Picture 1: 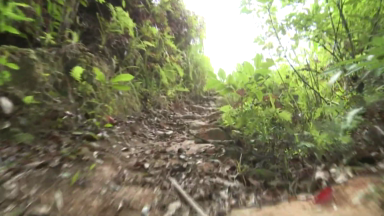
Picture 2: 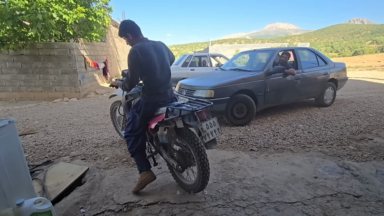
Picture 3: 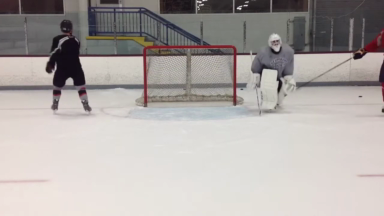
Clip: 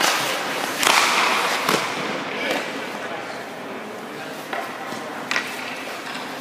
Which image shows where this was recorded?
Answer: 3